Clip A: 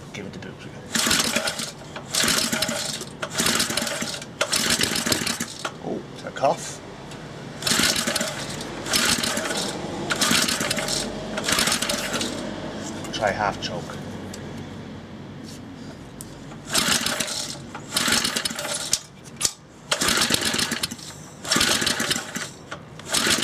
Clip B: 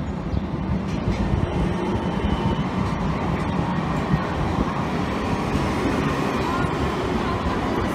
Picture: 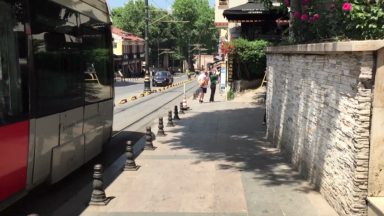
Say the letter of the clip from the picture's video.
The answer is B